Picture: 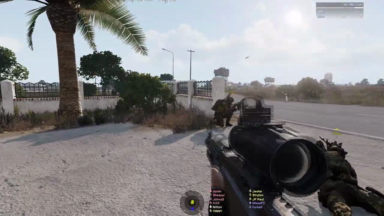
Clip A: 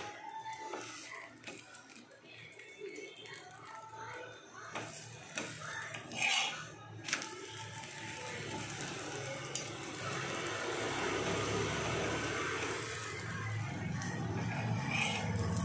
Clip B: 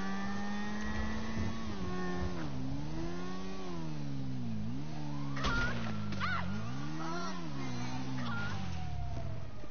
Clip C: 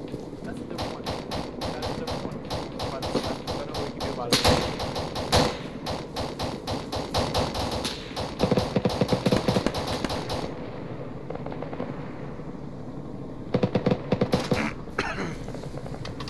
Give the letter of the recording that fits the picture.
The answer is C